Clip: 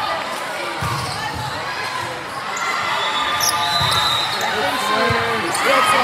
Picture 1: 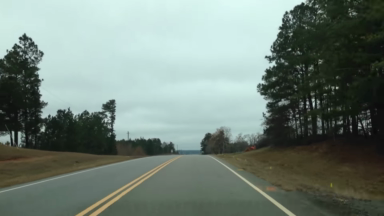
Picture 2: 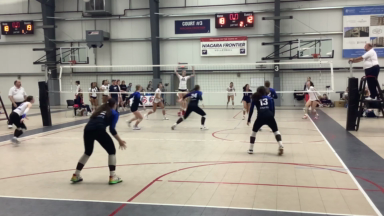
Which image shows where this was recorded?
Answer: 2